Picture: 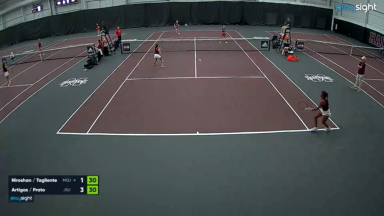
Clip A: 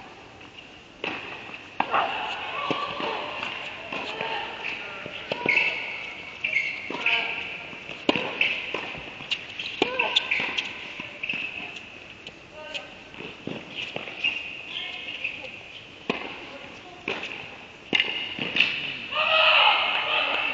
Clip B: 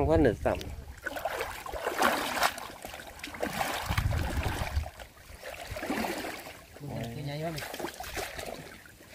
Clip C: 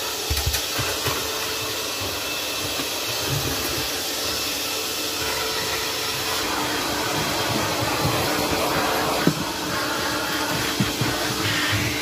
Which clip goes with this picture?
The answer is A